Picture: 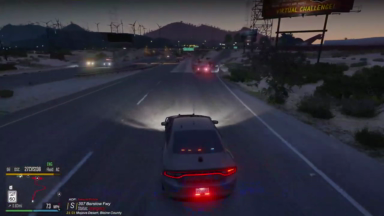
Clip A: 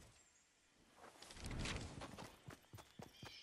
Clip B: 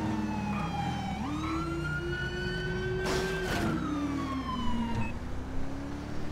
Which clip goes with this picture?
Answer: B